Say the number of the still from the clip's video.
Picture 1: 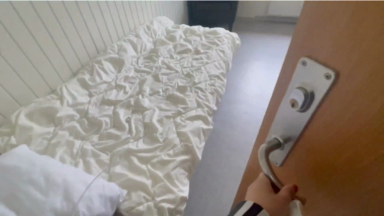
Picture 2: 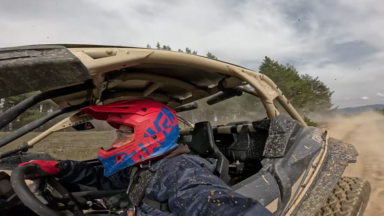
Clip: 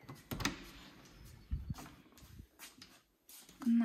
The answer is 1